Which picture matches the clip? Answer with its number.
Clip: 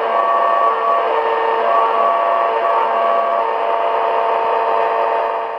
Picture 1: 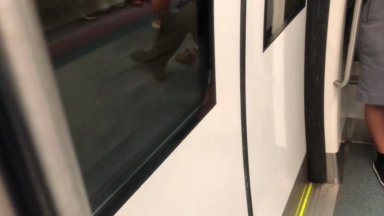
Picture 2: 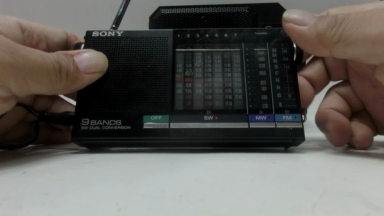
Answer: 2